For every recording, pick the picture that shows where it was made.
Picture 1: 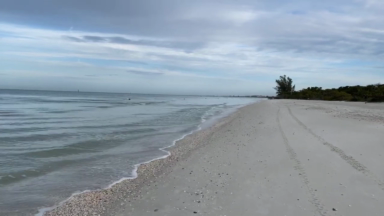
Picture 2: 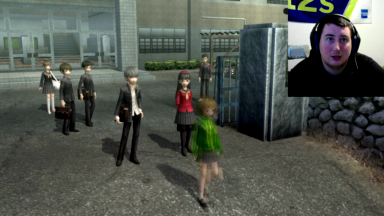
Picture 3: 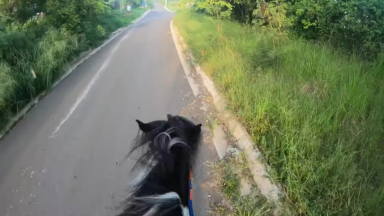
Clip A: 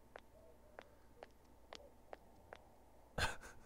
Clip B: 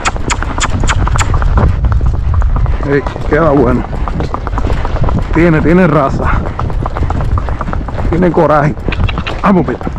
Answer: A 2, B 3